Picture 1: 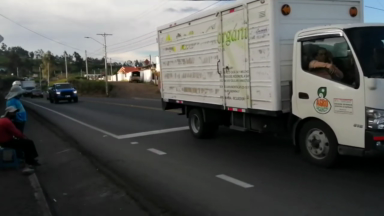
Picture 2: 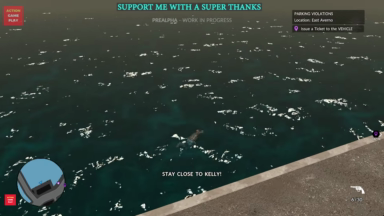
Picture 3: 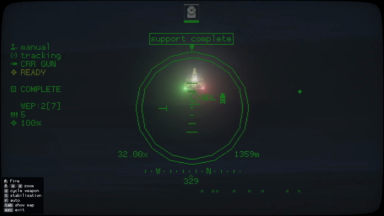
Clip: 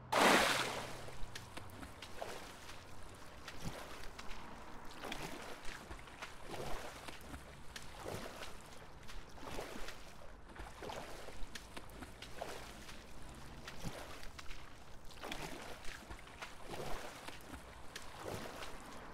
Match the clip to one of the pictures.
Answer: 2